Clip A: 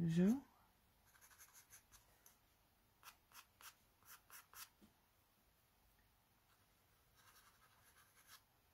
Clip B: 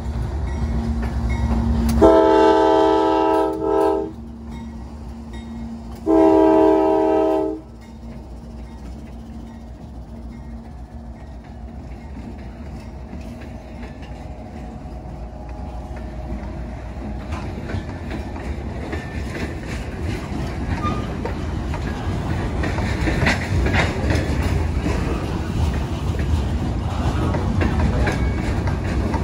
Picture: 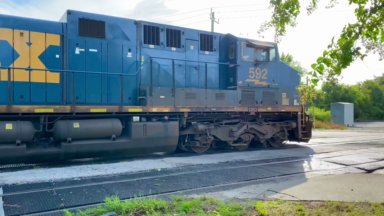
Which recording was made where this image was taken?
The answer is B